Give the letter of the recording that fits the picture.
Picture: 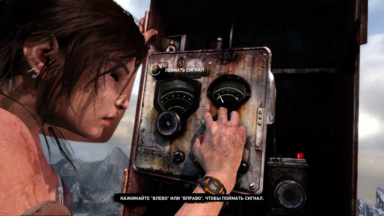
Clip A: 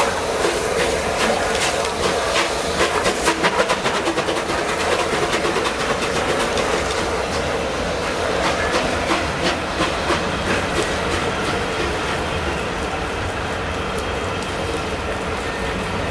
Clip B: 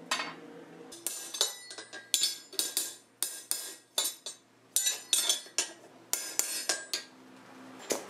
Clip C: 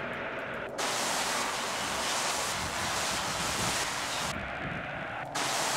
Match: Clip C